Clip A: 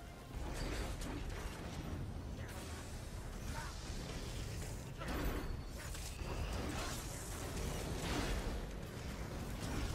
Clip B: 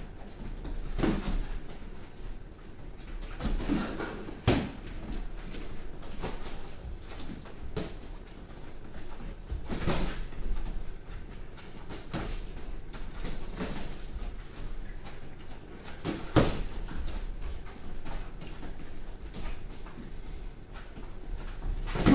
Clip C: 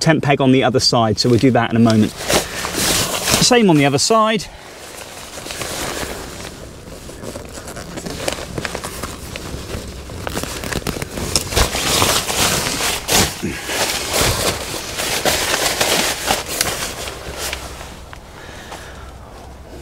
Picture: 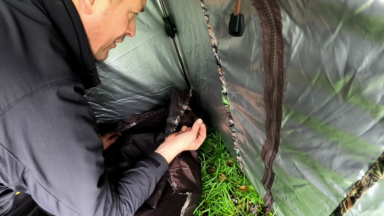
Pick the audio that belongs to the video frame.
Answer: C